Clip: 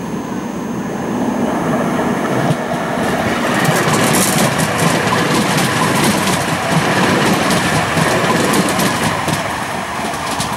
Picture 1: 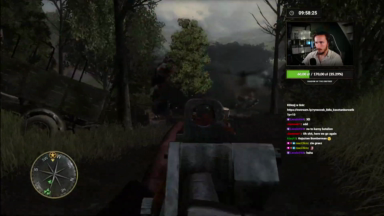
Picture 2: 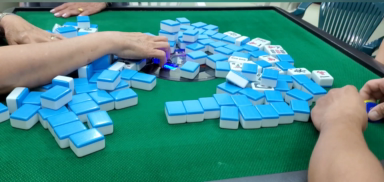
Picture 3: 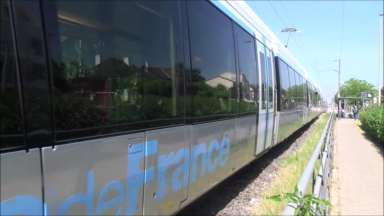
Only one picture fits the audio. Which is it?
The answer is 3